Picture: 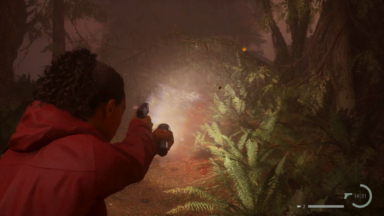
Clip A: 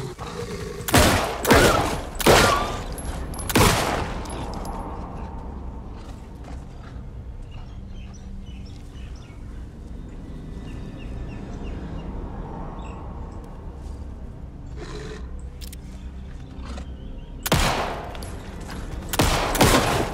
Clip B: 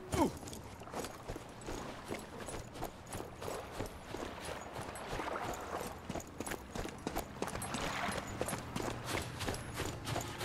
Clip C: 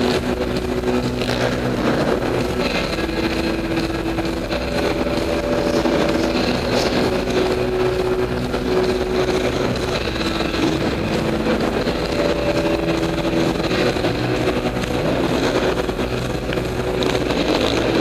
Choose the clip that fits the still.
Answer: A